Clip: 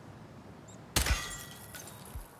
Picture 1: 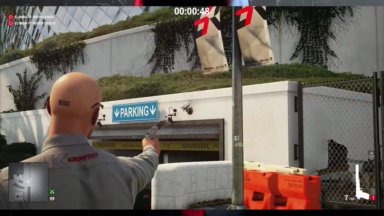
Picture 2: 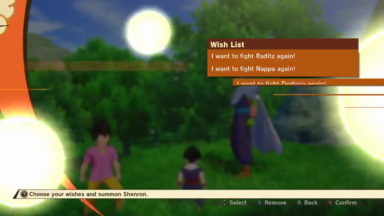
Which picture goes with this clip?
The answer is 1